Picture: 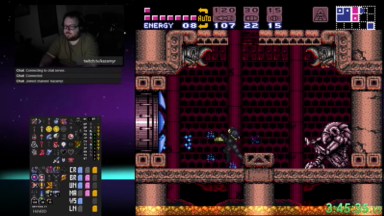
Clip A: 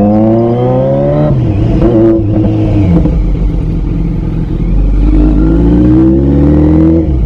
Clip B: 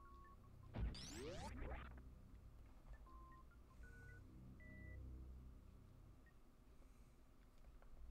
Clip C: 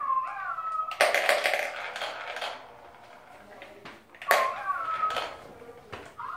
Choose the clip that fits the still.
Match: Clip B